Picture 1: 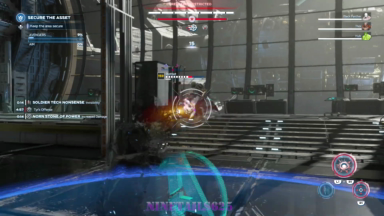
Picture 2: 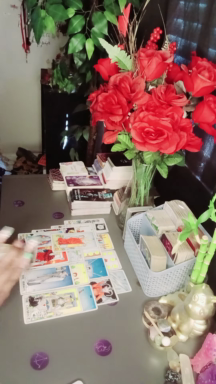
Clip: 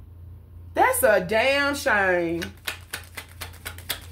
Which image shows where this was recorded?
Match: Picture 2